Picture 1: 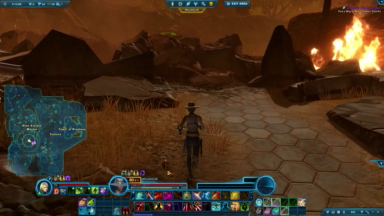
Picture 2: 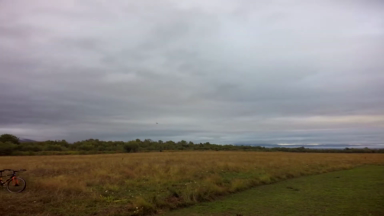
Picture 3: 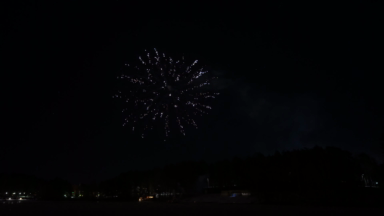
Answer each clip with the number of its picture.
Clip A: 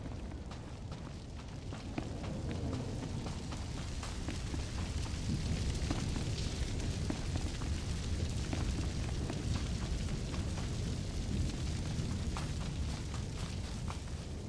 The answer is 1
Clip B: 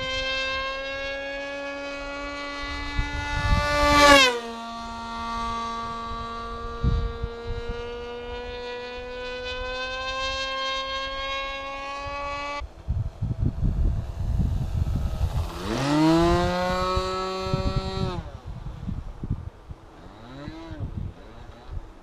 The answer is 2